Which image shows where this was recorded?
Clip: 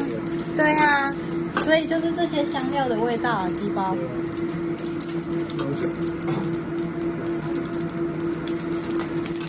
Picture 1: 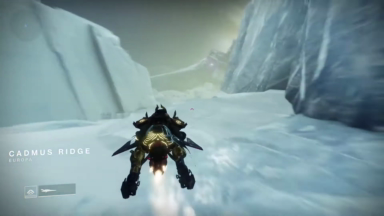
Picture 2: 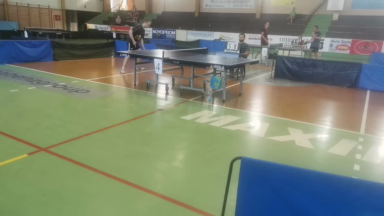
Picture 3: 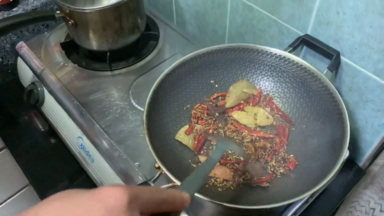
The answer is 3